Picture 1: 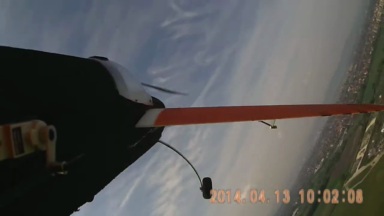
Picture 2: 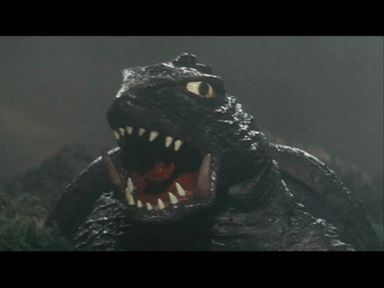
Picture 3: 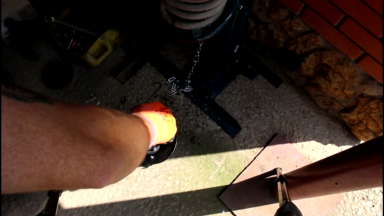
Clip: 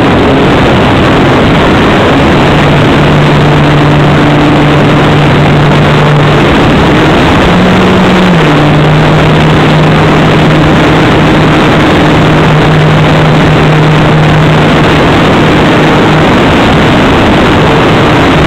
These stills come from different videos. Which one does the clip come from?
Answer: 1